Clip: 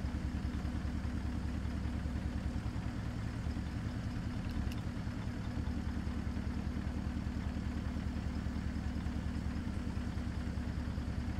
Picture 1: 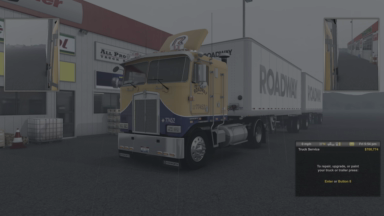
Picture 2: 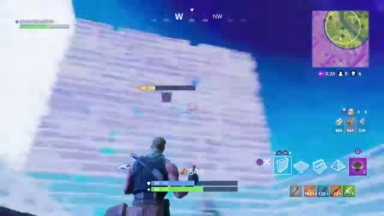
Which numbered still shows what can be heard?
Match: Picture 1